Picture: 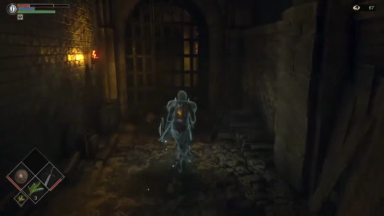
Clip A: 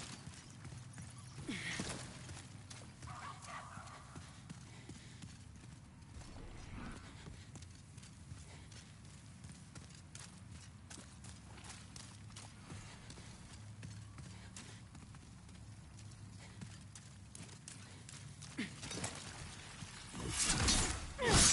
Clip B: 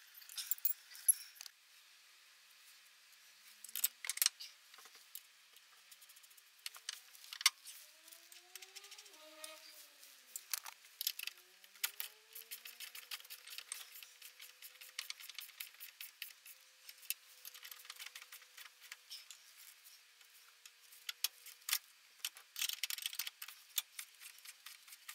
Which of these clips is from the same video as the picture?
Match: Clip A